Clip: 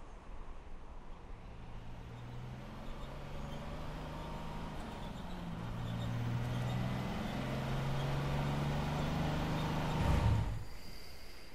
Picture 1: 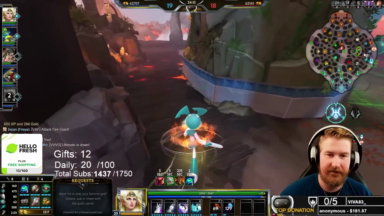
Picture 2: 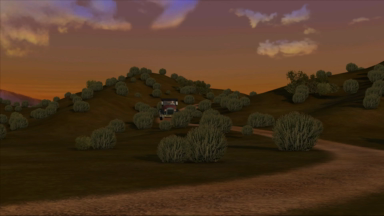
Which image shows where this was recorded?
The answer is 2